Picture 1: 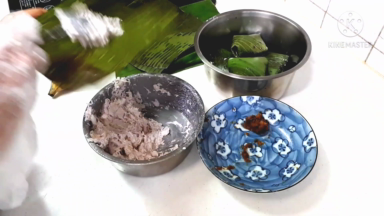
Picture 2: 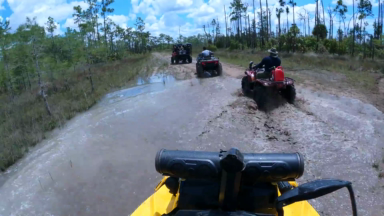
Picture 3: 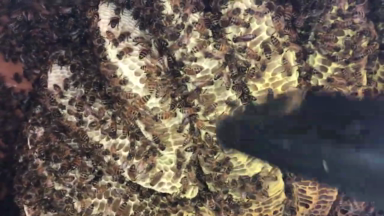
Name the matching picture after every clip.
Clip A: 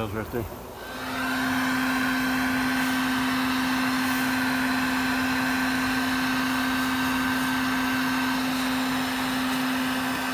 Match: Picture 3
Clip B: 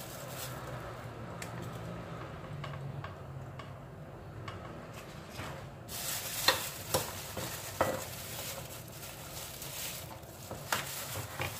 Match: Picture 1